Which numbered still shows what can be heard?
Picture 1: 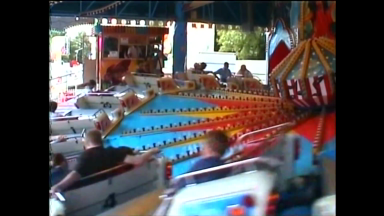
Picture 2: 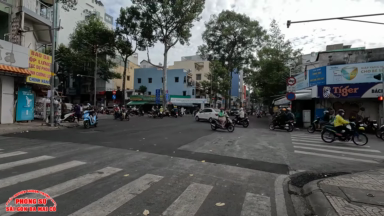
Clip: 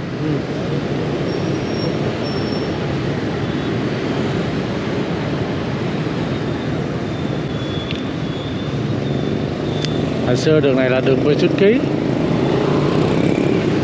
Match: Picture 2